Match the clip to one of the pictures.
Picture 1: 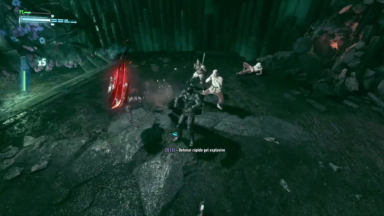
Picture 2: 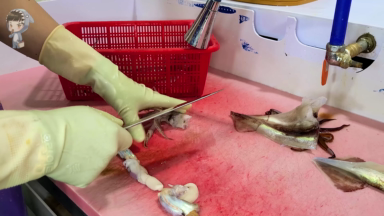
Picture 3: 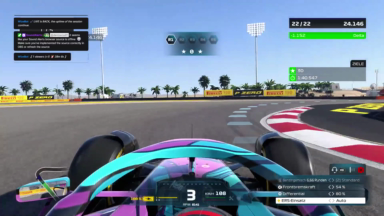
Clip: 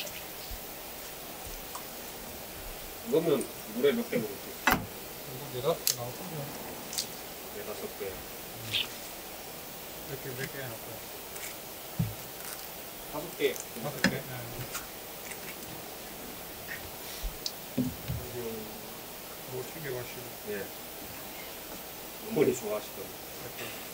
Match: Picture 2